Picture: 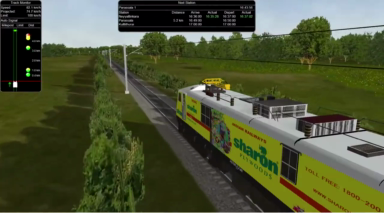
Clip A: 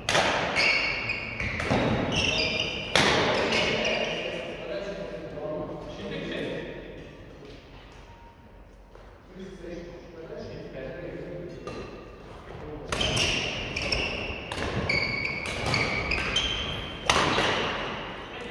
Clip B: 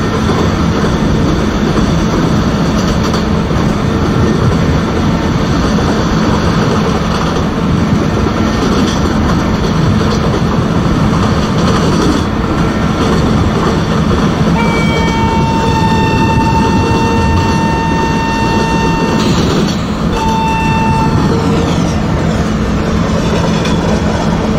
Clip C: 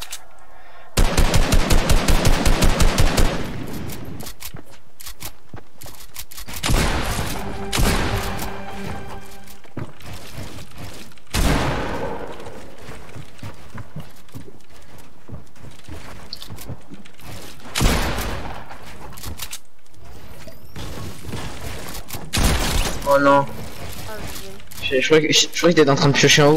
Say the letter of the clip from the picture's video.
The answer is B